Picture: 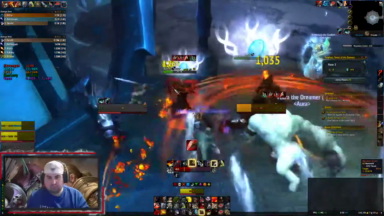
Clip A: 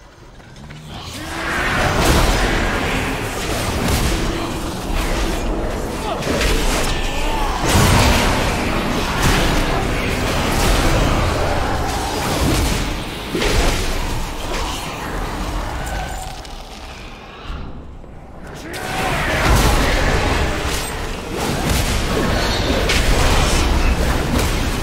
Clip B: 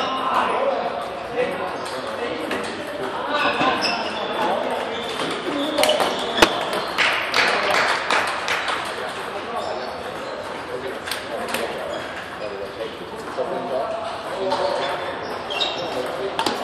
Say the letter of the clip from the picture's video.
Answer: A